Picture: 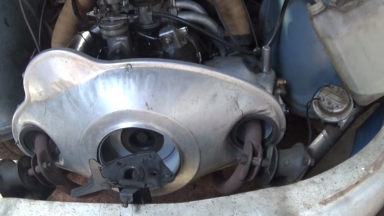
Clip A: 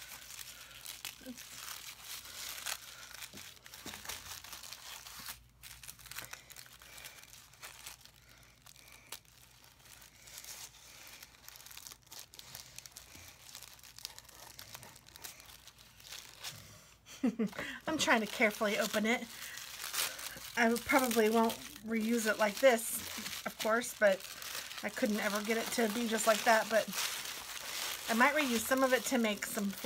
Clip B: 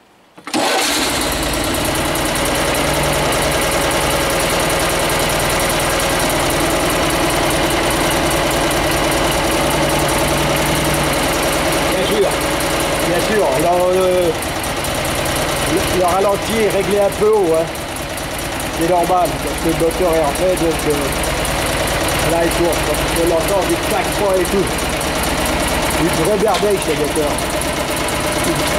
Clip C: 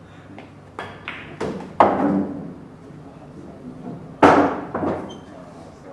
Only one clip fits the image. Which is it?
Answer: B